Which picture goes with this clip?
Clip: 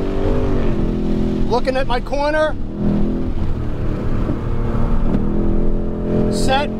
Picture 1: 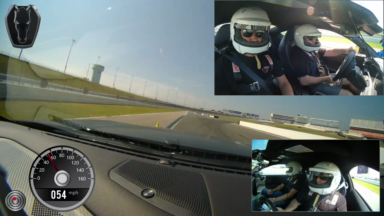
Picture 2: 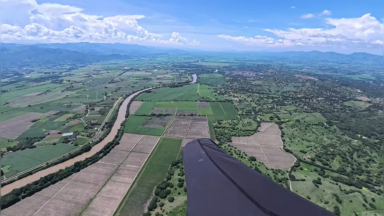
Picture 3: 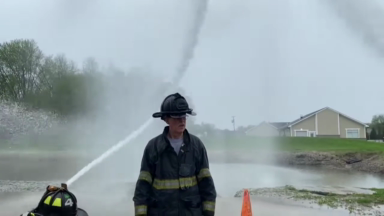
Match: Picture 1